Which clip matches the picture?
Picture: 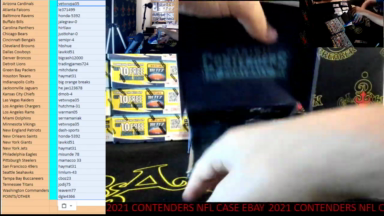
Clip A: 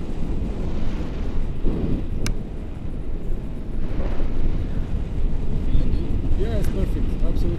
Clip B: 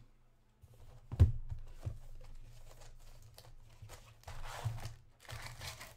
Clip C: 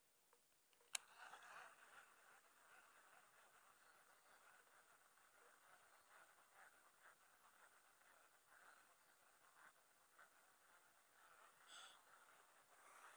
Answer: B